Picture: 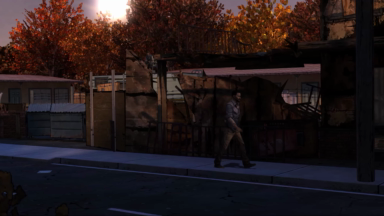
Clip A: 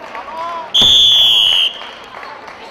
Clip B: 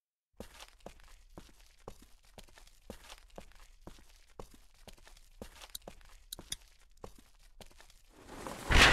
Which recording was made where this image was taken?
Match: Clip B